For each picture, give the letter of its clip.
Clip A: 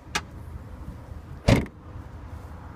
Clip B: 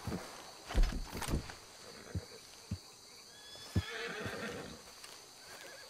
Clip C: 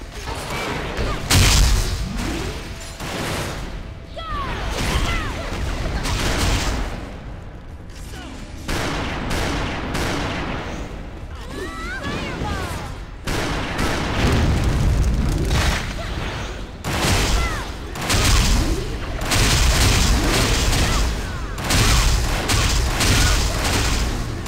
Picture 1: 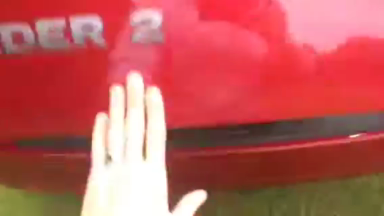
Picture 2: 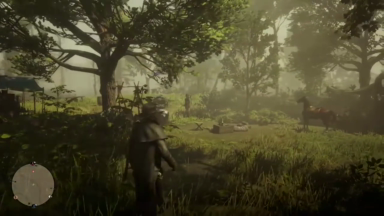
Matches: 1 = A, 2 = B